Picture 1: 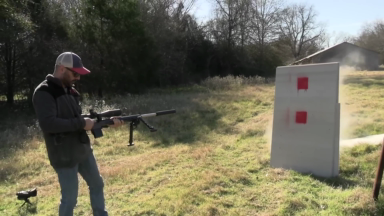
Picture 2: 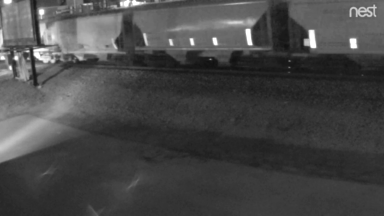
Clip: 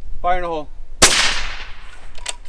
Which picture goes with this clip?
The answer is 1